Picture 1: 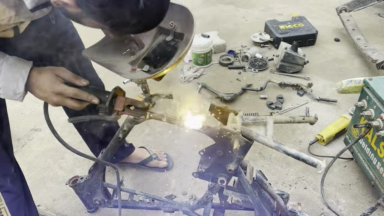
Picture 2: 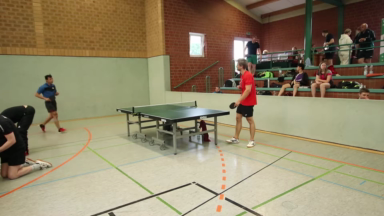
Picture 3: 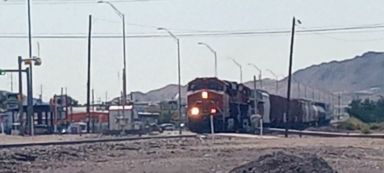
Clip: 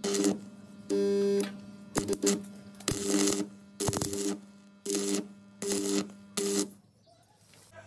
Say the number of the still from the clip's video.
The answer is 1